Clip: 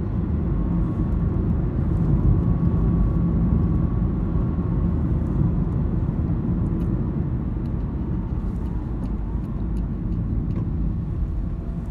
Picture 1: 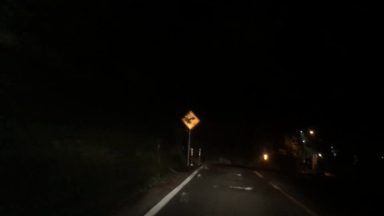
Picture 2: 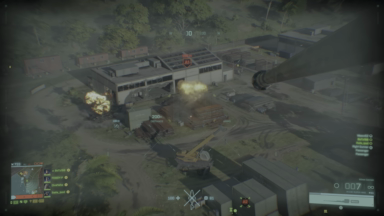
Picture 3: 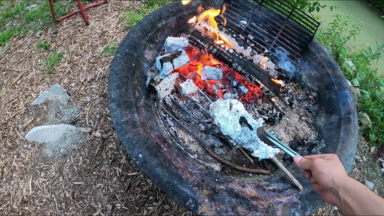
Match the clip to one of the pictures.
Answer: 1